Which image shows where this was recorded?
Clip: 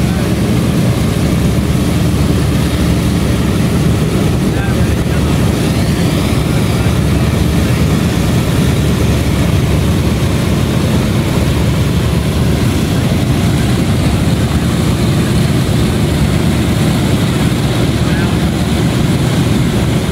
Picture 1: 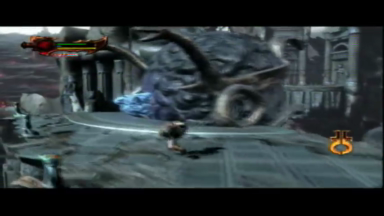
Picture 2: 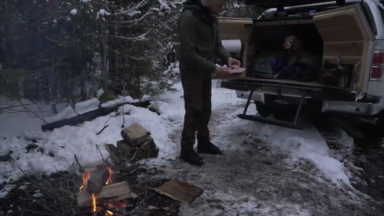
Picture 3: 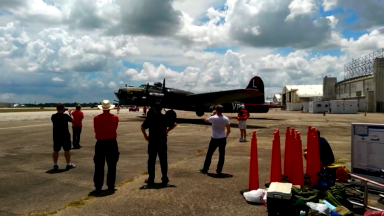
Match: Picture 3